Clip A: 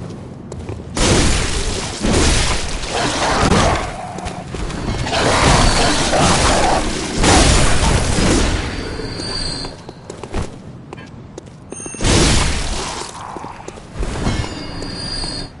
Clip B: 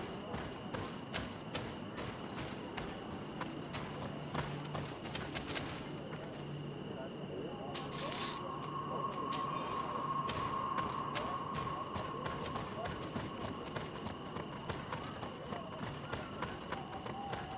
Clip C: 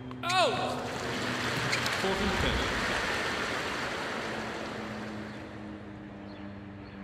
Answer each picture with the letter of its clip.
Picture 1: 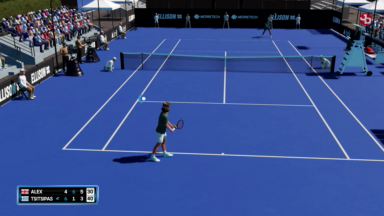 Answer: C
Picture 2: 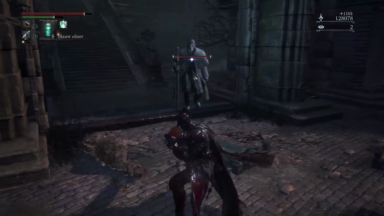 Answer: A